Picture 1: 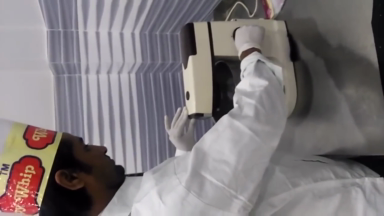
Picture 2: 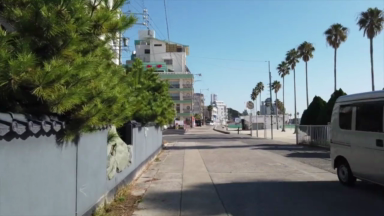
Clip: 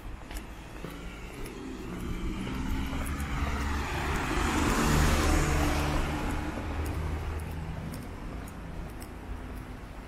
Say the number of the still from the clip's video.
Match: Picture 2